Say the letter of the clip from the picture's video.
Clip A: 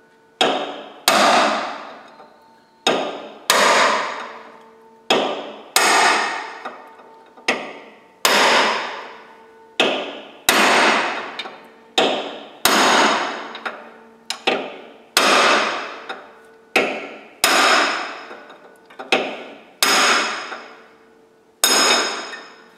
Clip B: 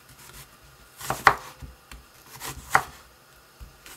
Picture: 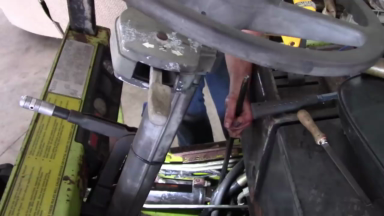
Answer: A